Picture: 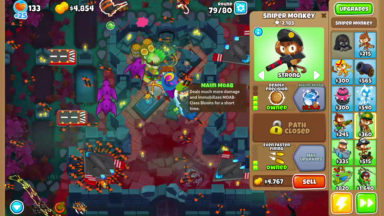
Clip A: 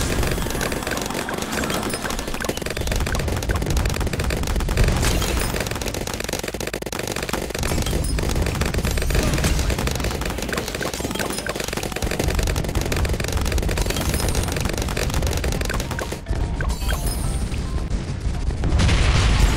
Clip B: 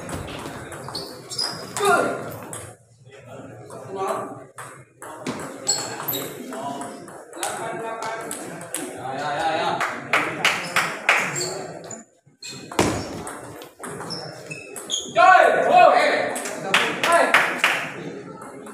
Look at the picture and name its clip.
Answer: A